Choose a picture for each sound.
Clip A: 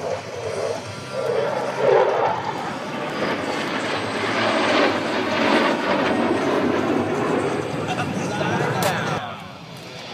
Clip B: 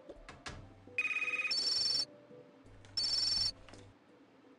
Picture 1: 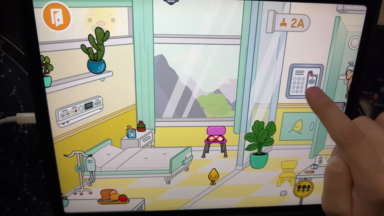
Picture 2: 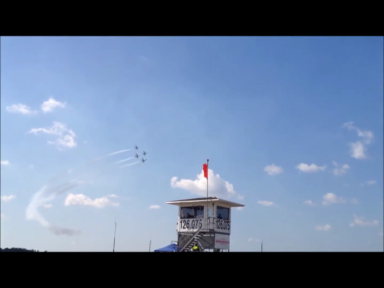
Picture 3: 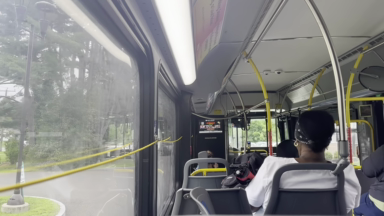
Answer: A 2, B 1